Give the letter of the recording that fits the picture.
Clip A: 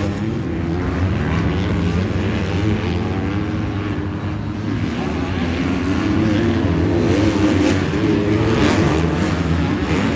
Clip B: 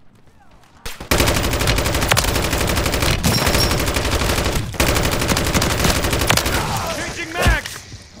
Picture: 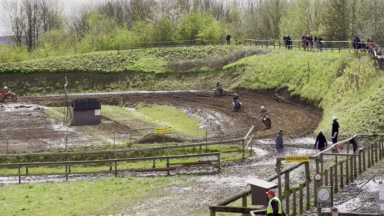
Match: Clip A